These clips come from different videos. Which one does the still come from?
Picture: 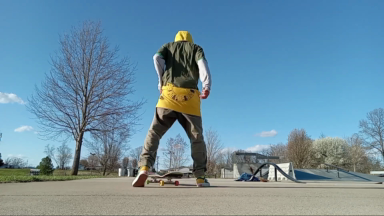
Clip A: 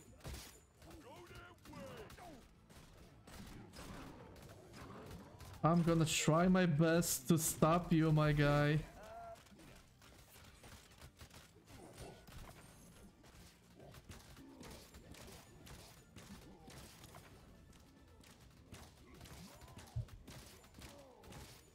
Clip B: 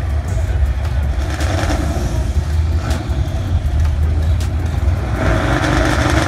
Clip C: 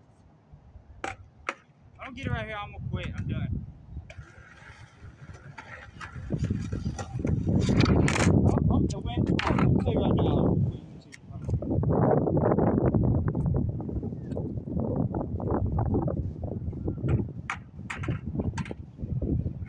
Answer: C